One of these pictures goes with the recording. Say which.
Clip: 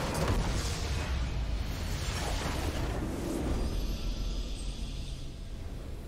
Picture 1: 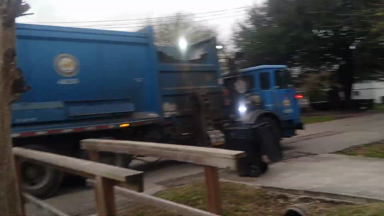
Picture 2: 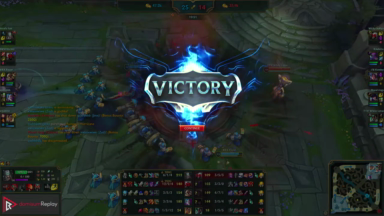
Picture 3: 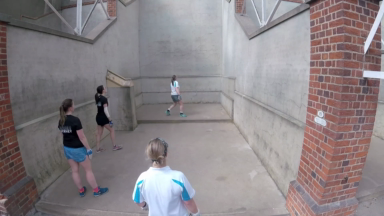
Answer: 2